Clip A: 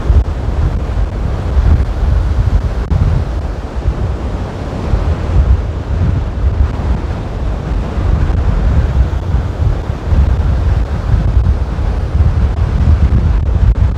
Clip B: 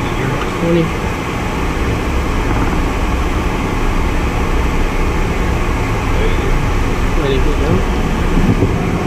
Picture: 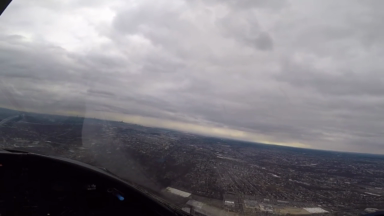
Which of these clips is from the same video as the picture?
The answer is B